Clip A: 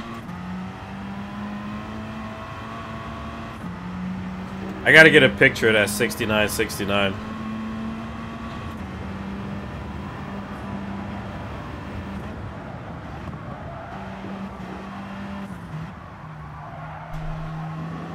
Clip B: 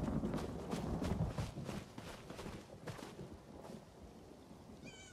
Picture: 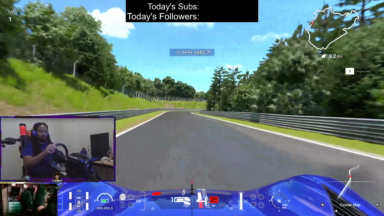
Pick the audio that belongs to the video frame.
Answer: A